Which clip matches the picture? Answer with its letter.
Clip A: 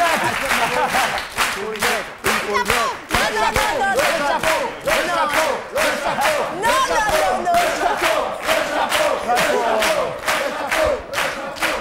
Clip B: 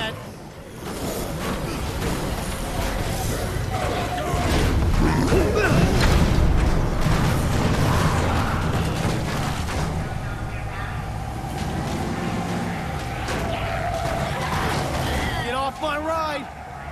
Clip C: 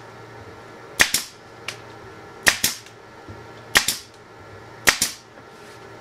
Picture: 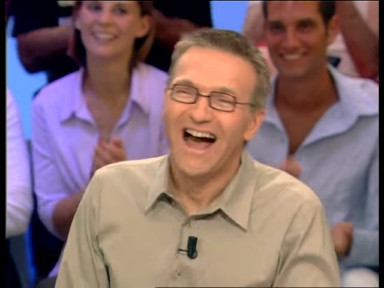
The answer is A